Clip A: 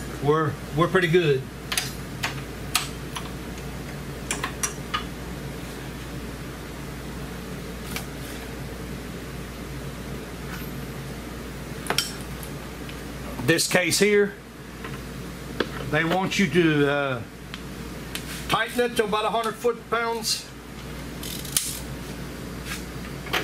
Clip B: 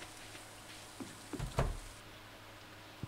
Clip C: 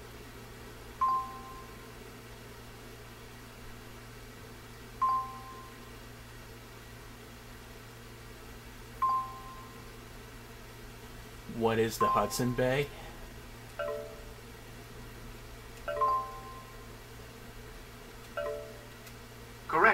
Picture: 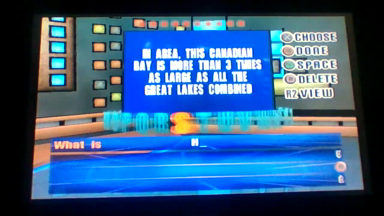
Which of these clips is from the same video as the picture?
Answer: C